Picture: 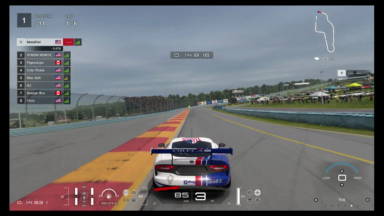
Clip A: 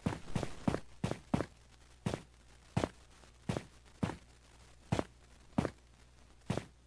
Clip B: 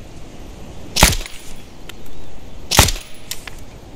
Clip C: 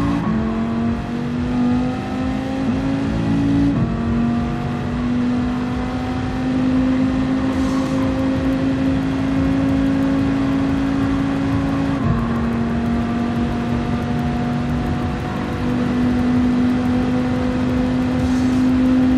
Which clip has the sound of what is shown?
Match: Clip C